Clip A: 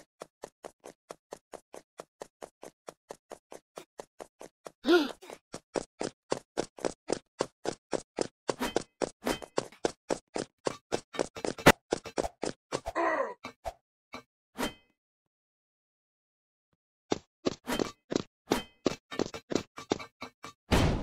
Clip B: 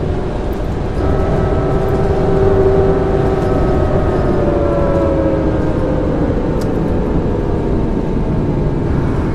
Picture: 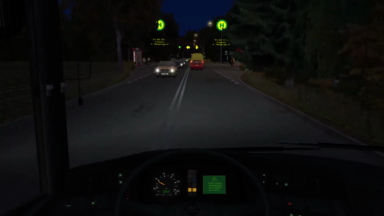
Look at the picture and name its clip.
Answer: B